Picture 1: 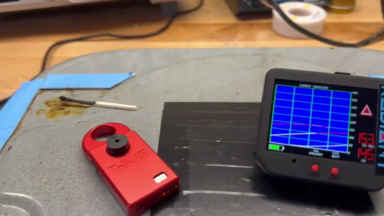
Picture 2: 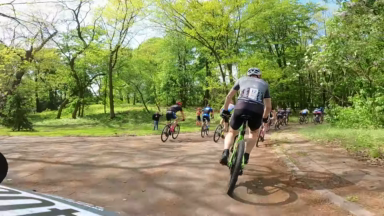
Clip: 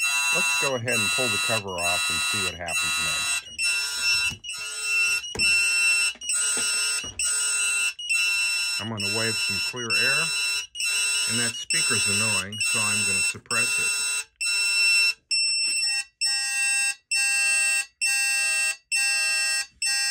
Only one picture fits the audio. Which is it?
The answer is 1